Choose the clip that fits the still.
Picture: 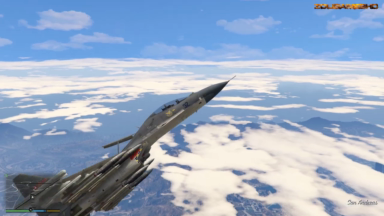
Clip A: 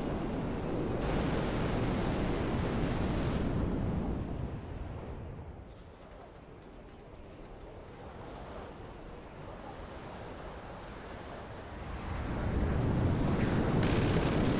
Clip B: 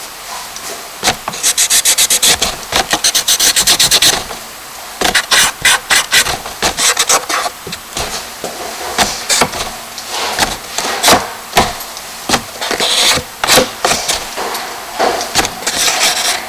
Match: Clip A